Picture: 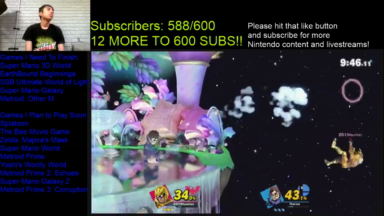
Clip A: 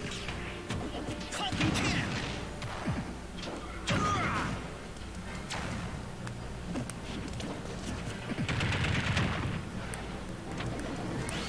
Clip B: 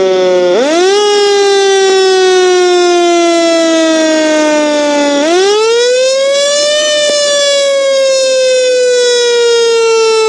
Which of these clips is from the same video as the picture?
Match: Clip A